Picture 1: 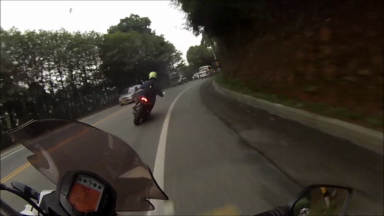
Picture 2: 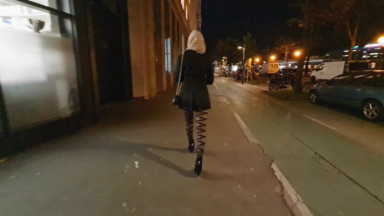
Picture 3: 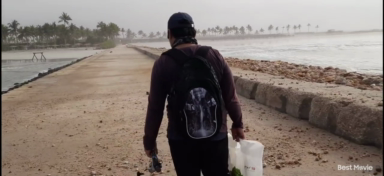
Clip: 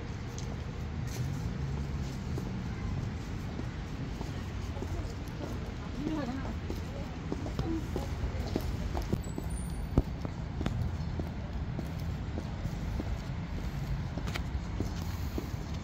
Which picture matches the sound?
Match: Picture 2